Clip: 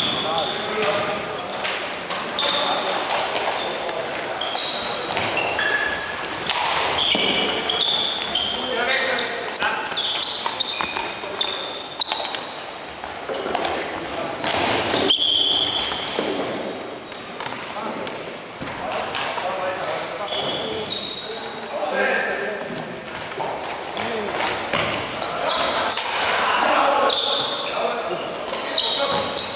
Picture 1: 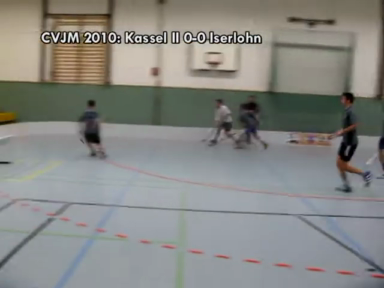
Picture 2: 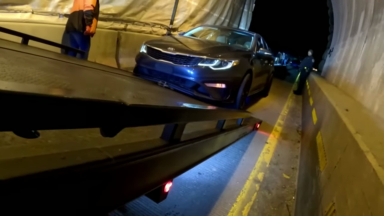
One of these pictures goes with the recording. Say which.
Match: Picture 1